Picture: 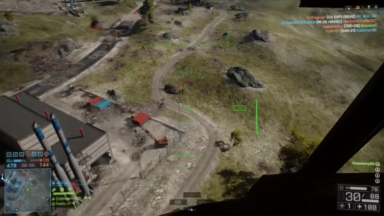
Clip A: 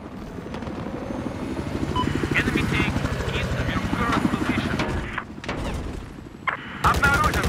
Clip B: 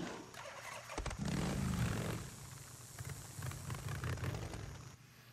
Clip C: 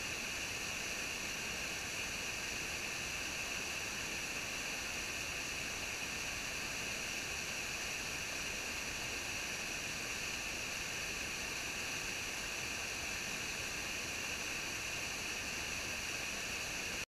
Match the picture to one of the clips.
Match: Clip A